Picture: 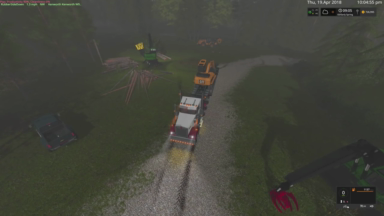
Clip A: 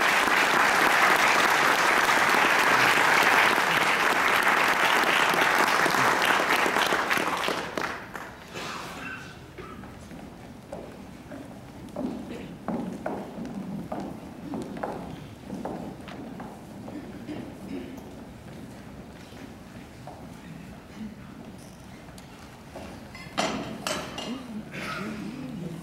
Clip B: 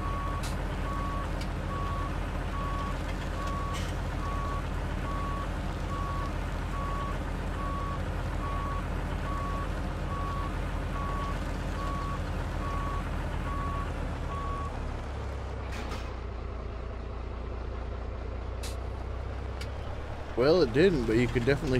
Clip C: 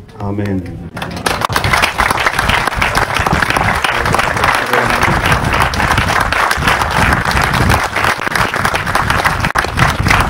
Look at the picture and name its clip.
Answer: B